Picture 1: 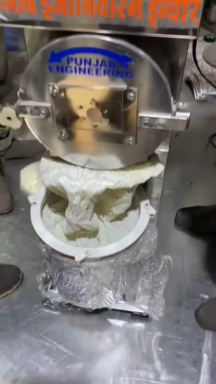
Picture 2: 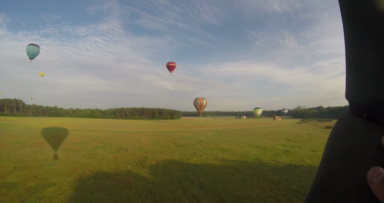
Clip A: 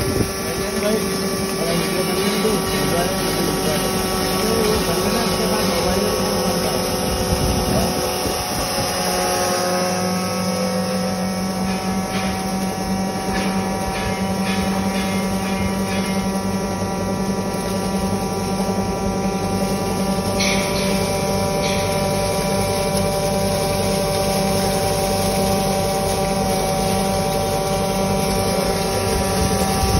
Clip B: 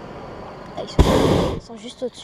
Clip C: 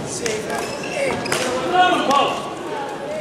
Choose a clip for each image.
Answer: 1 A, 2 B